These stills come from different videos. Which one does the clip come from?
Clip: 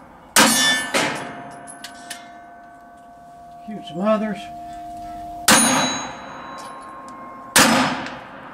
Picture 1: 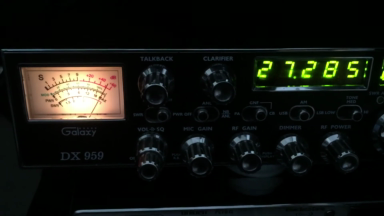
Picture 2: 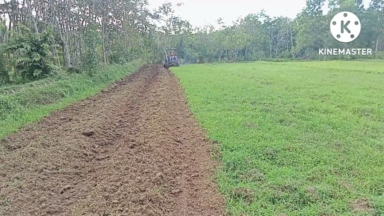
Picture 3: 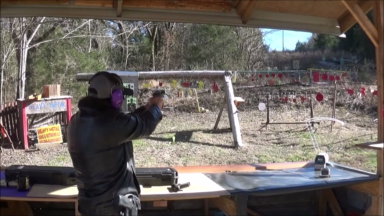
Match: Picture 3